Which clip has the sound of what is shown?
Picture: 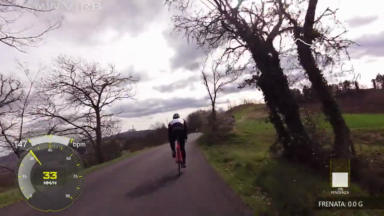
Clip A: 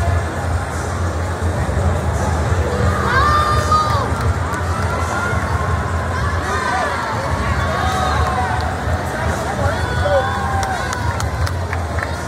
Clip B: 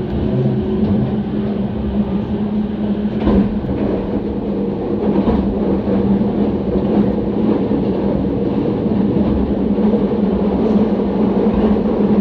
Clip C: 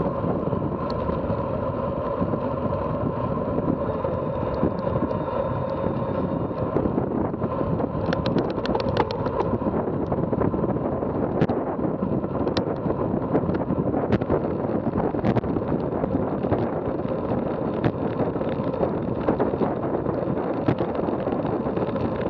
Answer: C